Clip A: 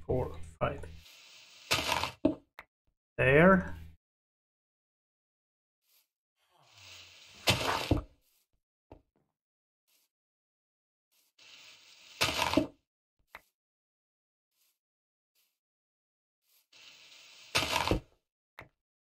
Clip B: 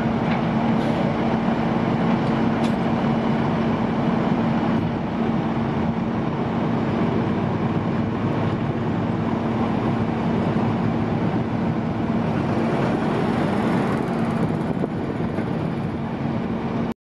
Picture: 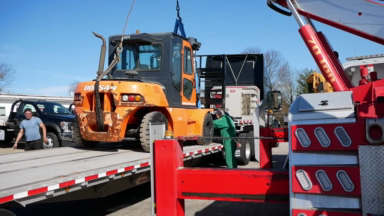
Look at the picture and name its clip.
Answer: B